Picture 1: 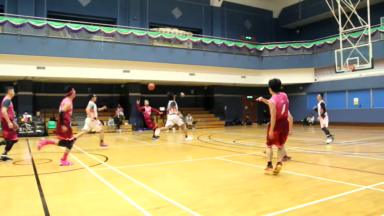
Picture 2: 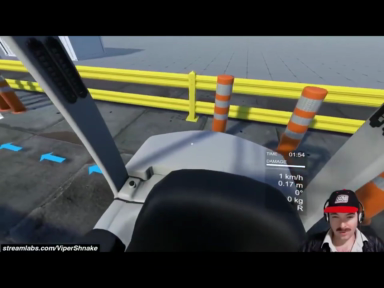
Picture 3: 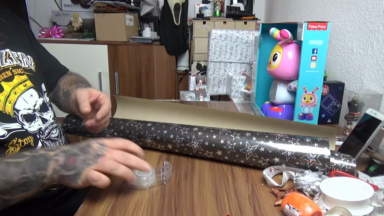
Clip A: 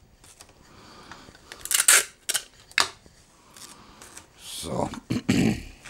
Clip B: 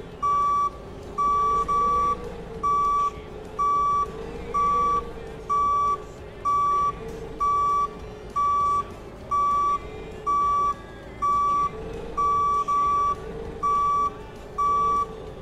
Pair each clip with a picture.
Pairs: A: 3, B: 2